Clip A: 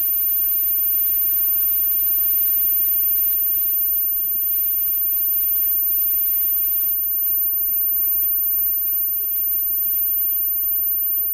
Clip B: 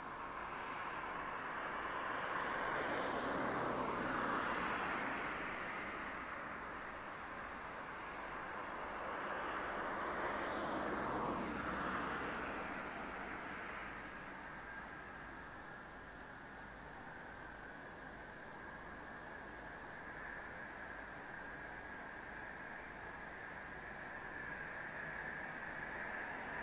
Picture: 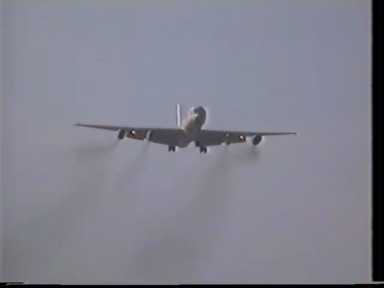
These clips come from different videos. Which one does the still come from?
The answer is B